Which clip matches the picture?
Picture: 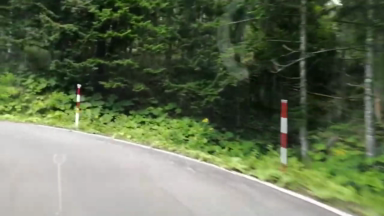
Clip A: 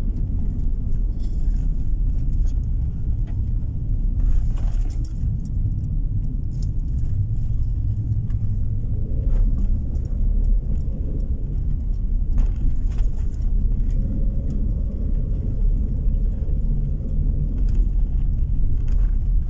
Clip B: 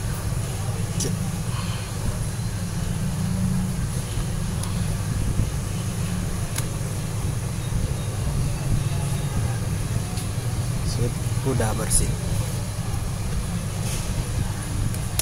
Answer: A